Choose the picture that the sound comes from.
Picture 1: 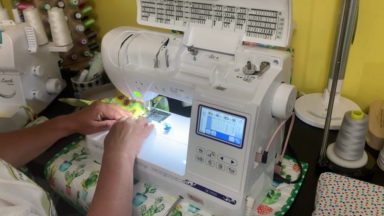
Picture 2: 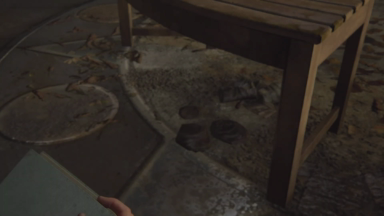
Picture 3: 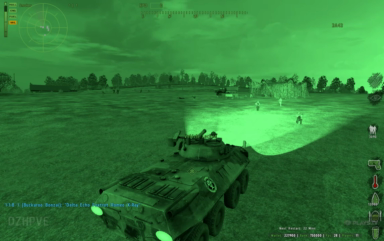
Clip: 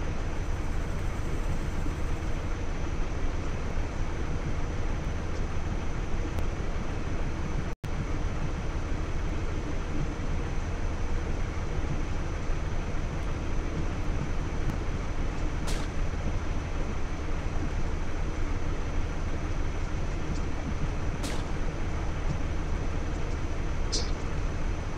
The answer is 3